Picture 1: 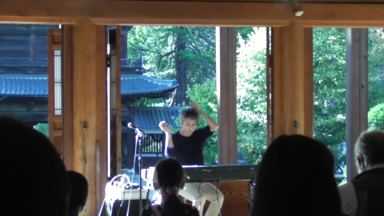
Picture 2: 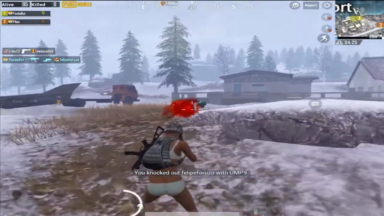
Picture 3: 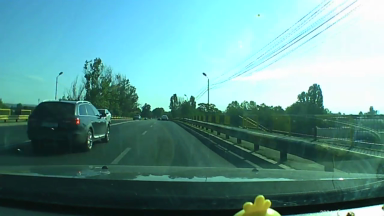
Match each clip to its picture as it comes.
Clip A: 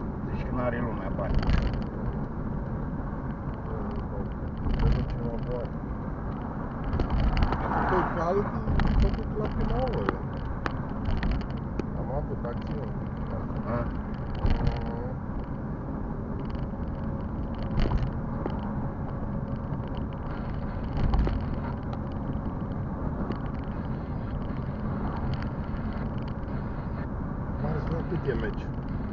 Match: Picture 3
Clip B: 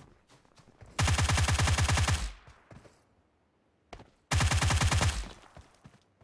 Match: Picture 2